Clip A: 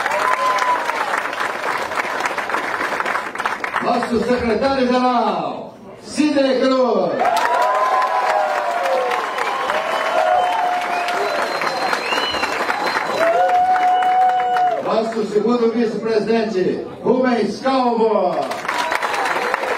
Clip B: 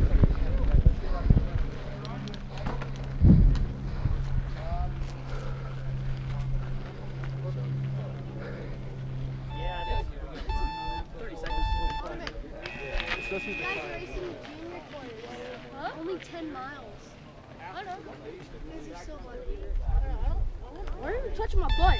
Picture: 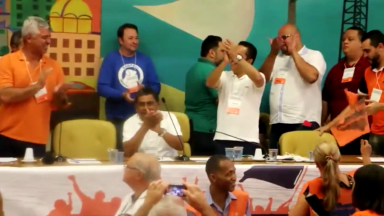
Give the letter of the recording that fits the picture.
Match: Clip A